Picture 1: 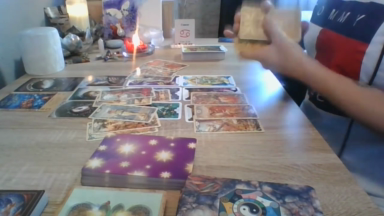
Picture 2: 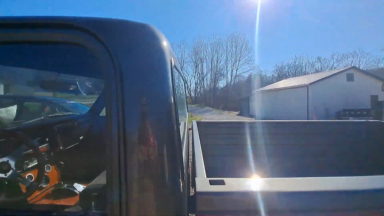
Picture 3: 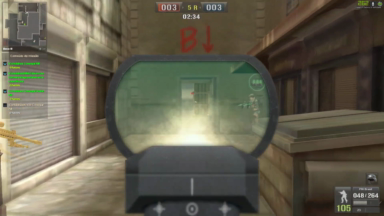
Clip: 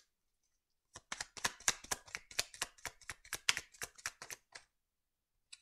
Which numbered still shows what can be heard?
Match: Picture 1